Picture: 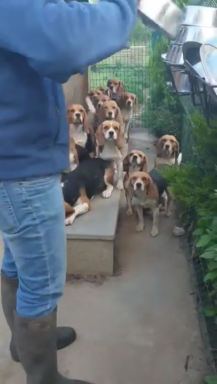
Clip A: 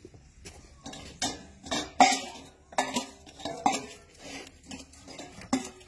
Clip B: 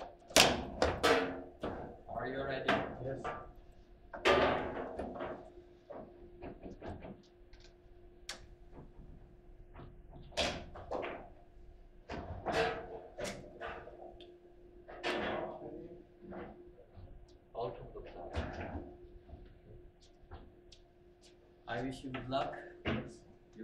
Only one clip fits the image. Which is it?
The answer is A